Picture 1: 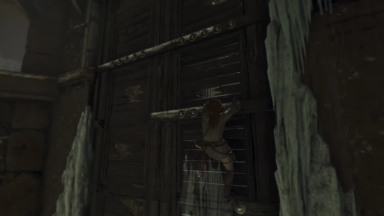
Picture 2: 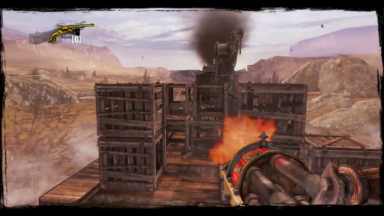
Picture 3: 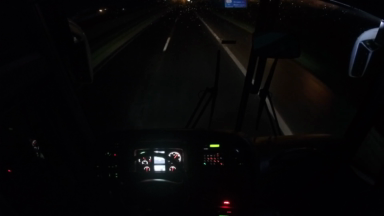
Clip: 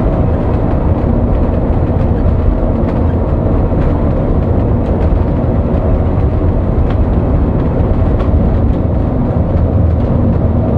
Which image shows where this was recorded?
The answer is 3